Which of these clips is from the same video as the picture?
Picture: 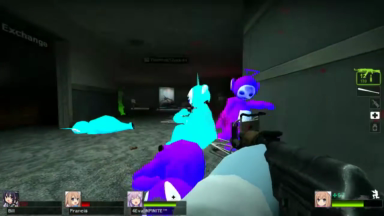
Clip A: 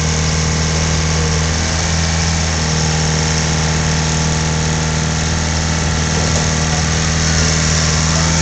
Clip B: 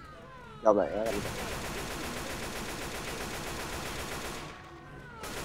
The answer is B